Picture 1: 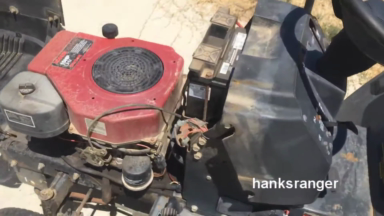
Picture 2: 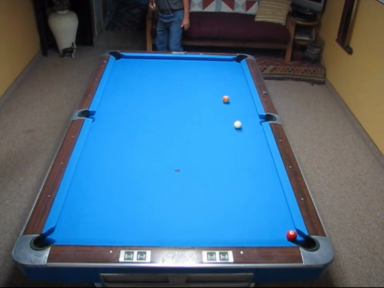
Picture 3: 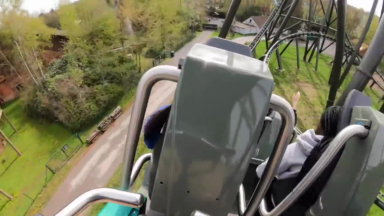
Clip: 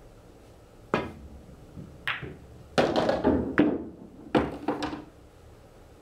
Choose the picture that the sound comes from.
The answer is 2